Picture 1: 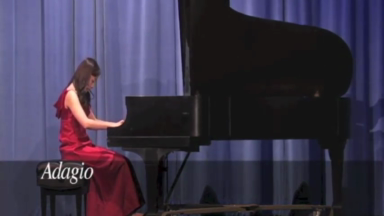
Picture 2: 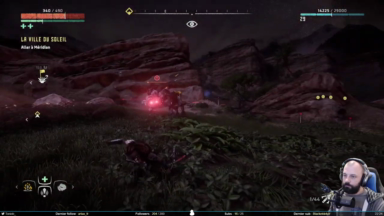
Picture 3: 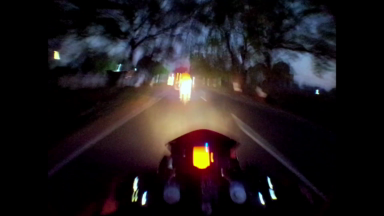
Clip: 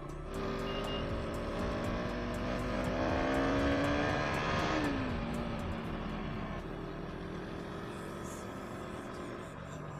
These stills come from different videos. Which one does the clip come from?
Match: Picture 3